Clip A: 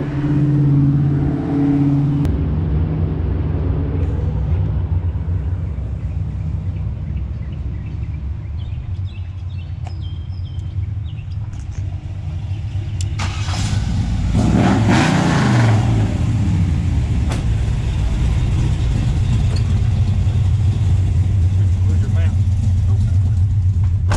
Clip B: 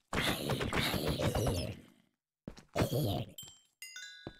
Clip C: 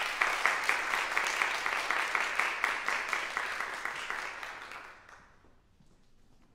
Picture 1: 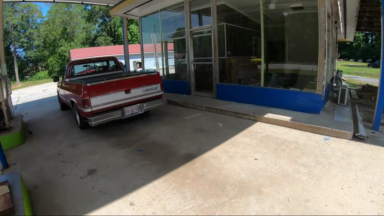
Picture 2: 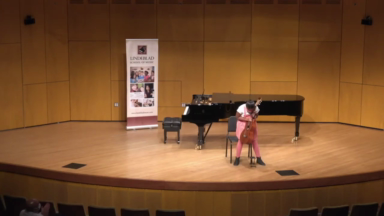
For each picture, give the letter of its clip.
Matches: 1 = A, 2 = C